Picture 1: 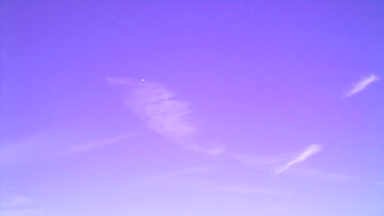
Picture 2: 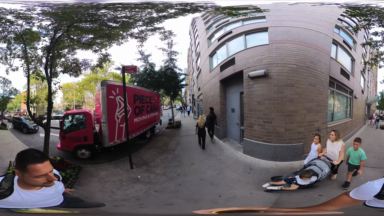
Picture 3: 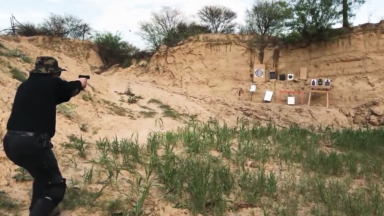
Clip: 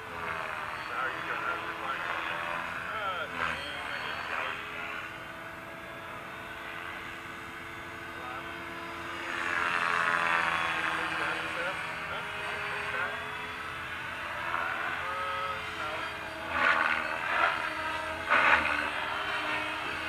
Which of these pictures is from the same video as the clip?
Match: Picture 1